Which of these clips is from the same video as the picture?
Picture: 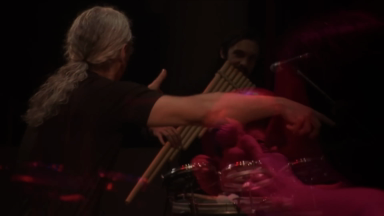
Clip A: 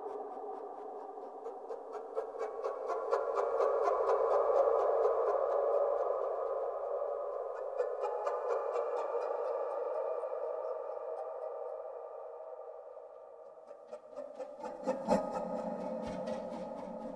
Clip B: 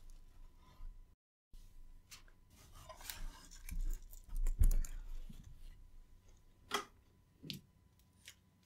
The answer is A